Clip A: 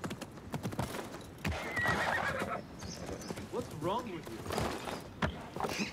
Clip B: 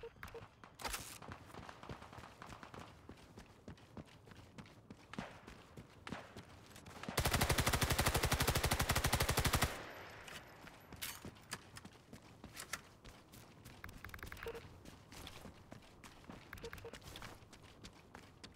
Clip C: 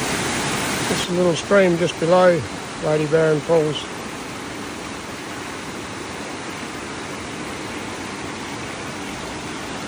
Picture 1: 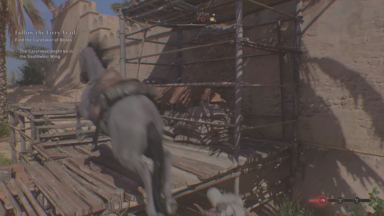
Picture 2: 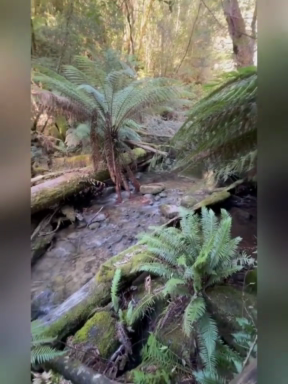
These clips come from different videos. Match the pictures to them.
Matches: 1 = A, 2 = C